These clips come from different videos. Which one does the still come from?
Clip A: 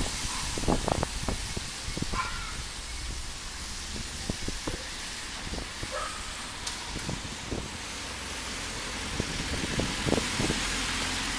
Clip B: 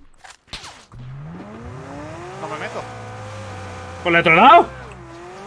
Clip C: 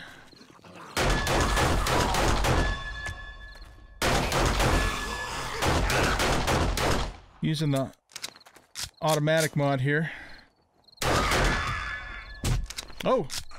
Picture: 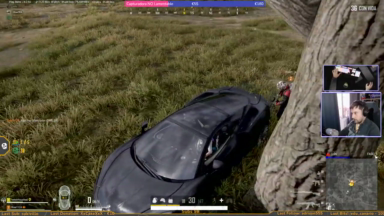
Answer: B